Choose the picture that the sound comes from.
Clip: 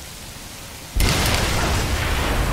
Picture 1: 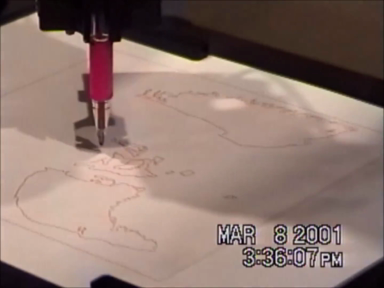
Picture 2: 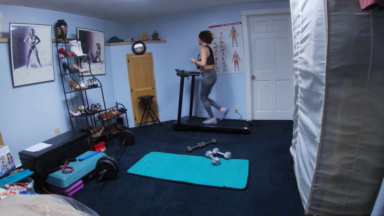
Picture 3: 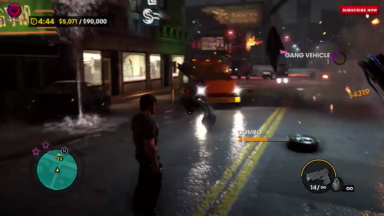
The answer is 3